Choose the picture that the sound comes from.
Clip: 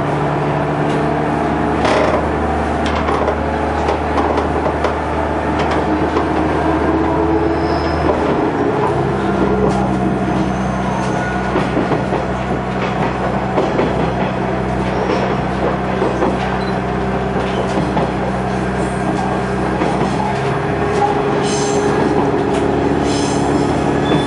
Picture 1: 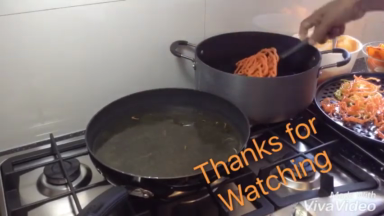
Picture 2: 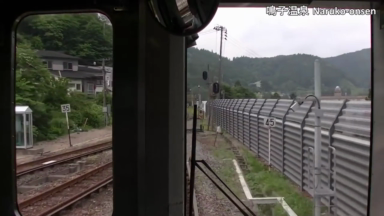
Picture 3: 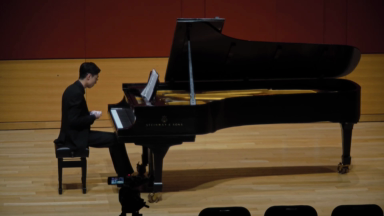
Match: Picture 2